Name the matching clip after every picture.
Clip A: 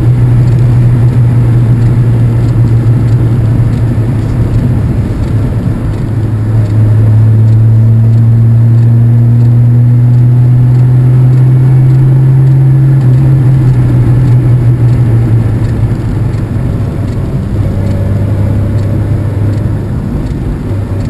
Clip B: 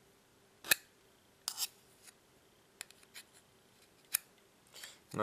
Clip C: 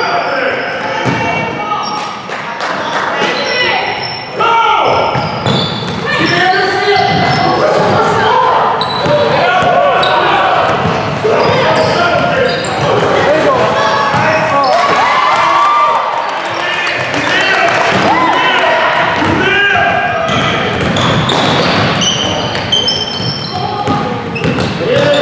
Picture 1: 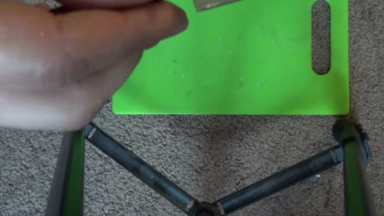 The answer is B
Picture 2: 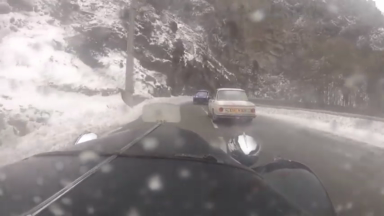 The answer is A